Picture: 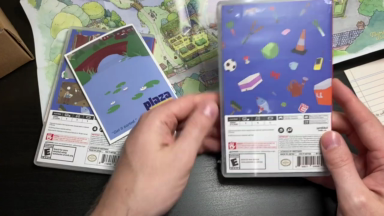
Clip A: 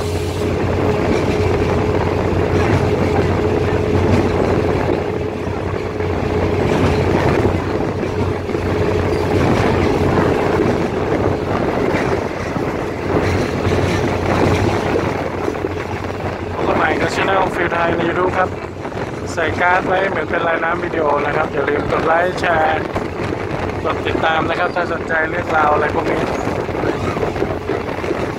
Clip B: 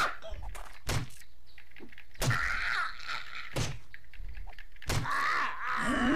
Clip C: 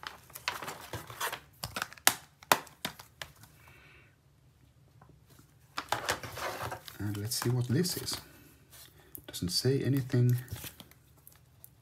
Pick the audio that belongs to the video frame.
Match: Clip C